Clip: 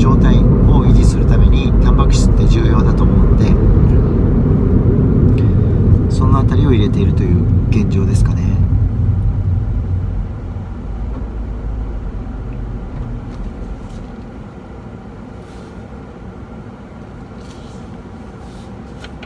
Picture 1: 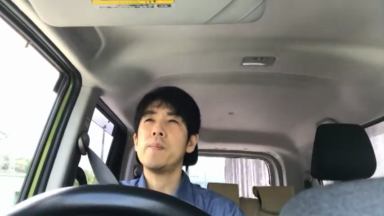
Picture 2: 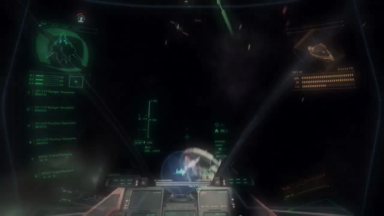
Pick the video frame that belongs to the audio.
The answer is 1